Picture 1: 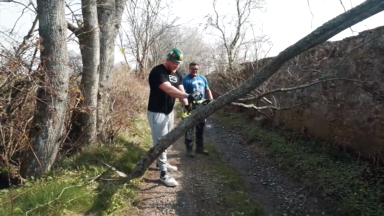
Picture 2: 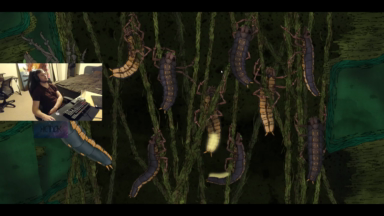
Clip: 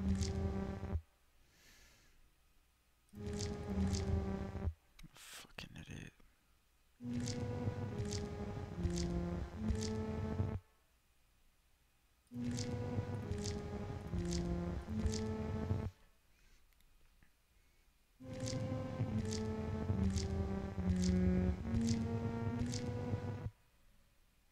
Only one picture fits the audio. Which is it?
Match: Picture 2